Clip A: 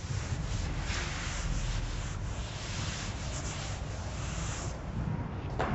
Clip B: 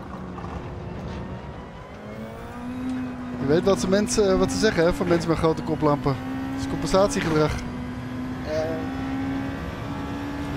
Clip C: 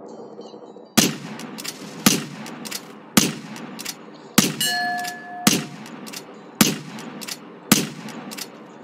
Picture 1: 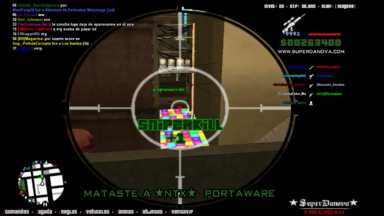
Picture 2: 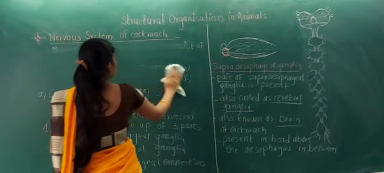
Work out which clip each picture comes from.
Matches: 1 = C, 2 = A